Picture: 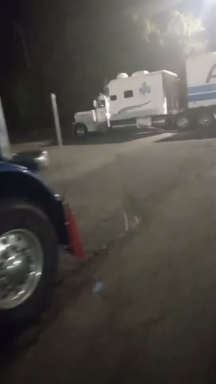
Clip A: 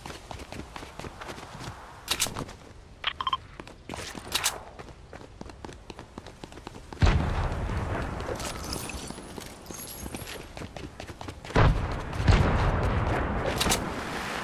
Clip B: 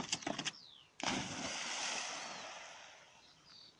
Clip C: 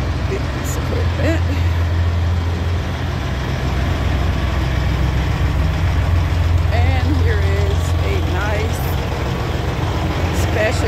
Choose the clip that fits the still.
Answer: C